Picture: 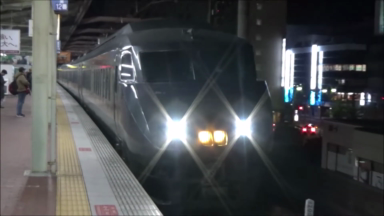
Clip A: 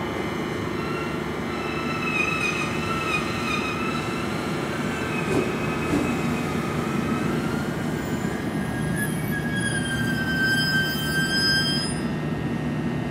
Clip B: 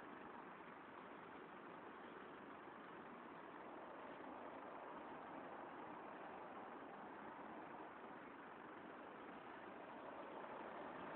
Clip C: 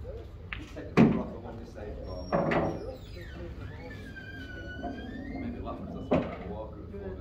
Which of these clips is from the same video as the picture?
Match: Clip A